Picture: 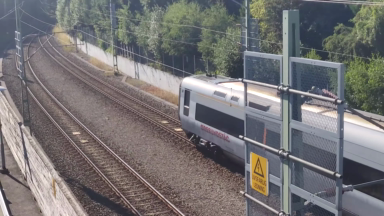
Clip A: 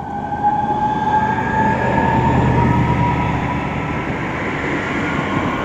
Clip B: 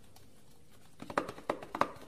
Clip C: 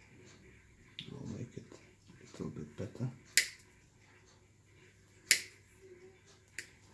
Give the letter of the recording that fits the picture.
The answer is A